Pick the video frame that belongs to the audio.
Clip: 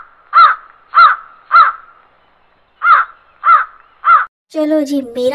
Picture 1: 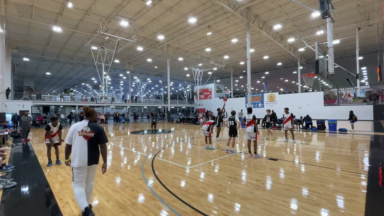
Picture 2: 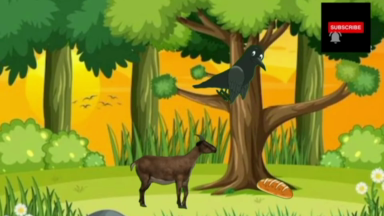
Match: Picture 2